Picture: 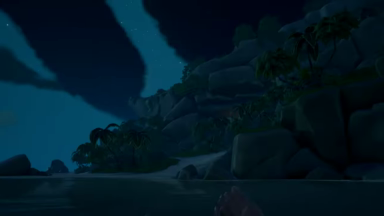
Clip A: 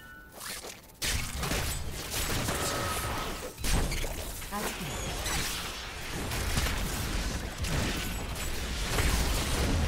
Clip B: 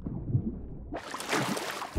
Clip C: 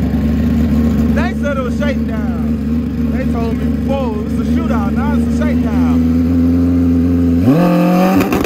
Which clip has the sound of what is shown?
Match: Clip B